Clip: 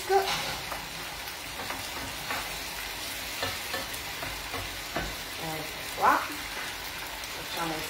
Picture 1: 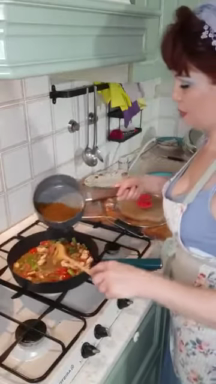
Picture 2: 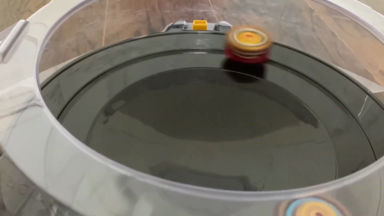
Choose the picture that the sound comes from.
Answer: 1